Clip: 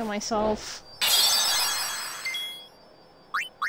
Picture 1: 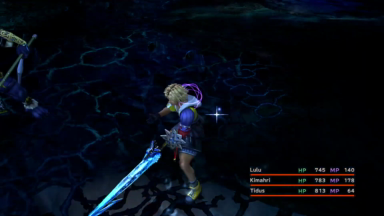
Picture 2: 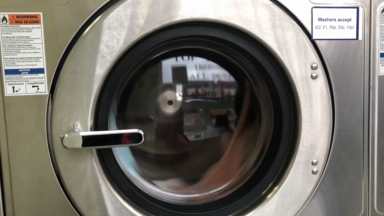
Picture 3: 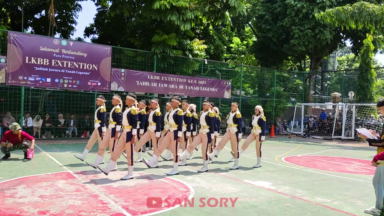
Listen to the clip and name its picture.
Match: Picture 1